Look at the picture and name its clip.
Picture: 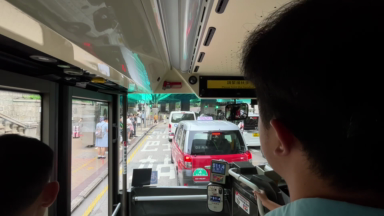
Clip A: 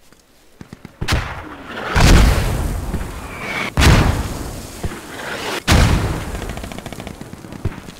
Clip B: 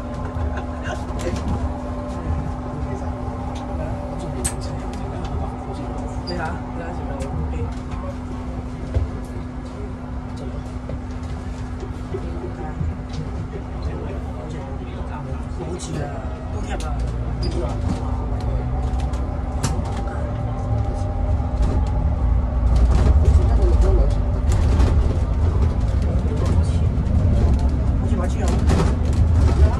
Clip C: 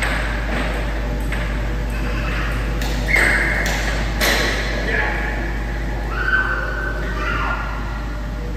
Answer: B